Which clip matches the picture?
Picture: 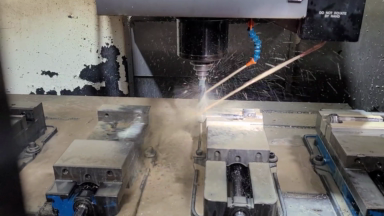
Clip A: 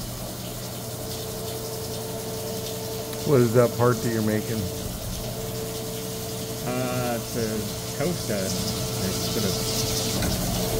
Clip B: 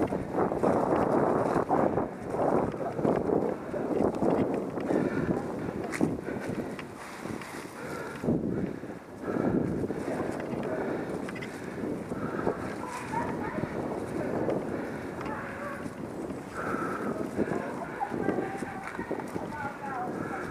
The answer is A